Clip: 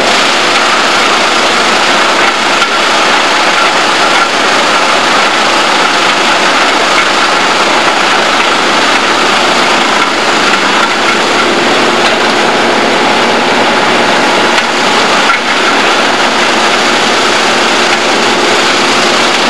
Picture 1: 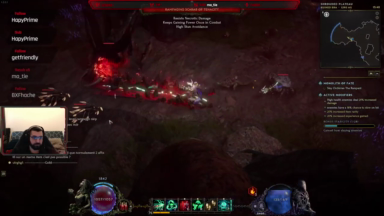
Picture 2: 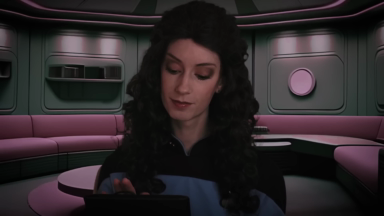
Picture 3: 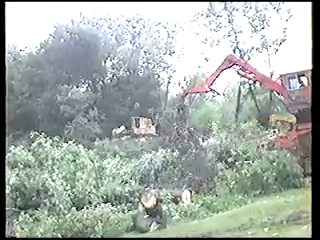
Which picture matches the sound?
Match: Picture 3